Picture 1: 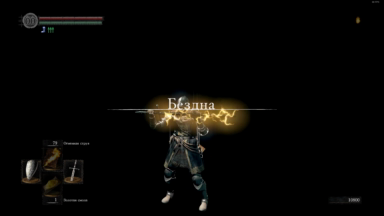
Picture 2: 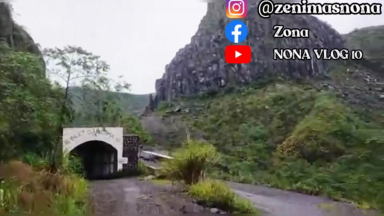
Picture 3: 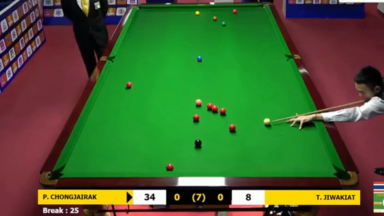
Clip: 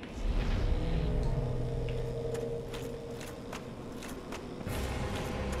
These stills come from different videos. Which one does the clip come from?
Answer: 1